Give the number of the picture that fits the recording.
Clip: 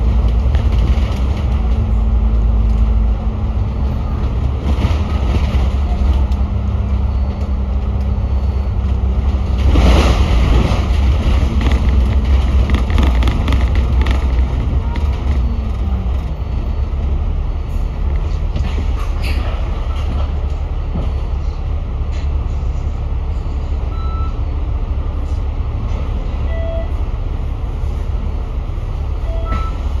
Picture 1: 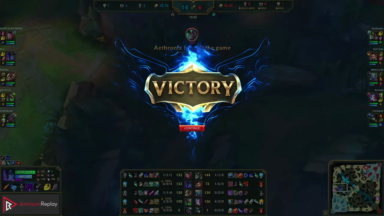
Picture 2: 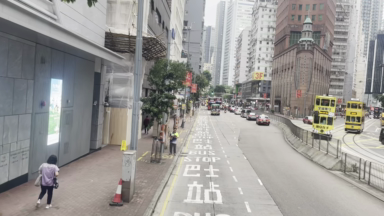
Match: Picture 2